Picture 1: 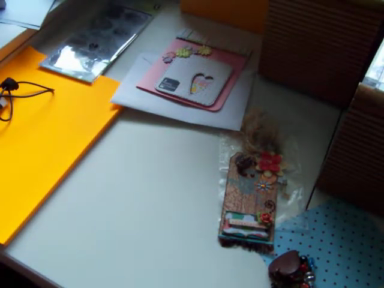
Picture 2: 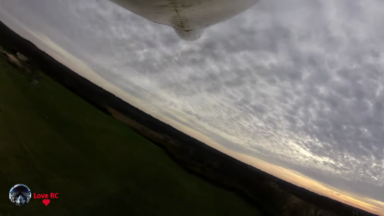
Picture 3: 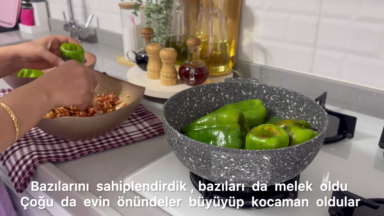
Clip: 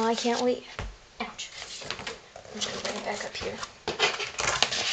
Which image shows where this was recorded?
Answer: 1